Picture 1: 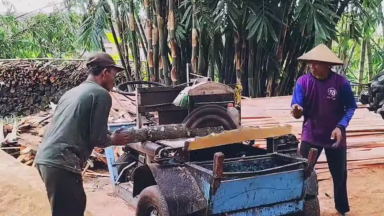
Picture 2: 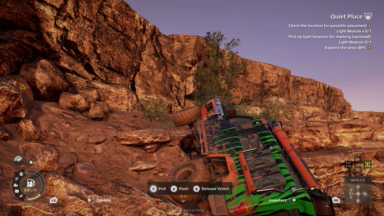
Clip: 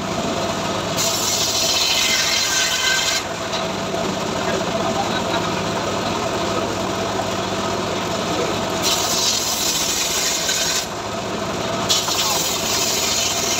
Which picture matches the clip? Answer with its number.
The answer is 1